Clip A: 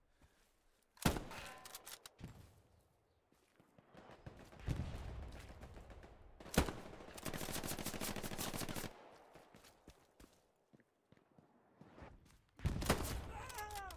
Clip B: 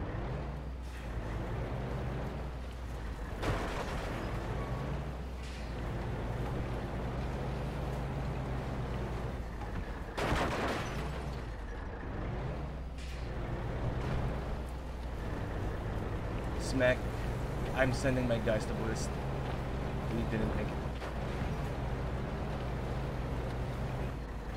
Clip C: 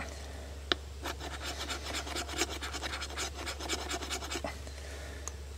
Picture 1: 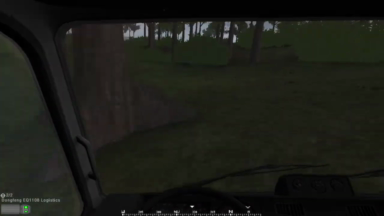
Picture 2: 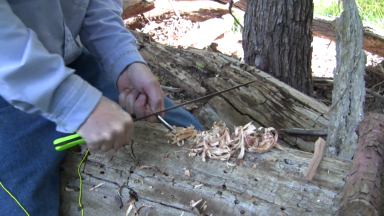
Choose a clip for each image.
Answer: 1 B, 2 C